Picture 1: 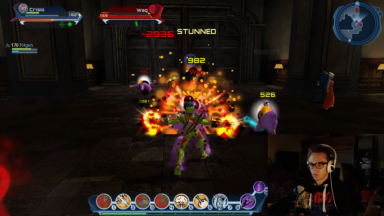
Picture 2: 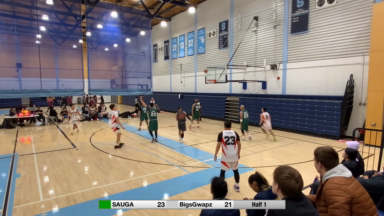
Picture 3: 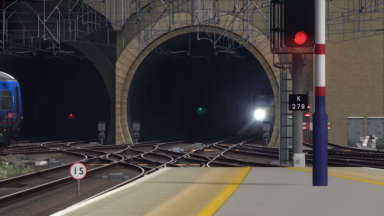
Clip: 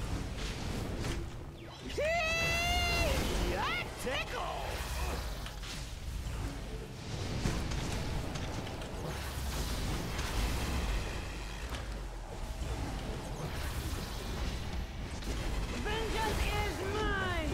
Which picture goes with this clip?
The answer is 1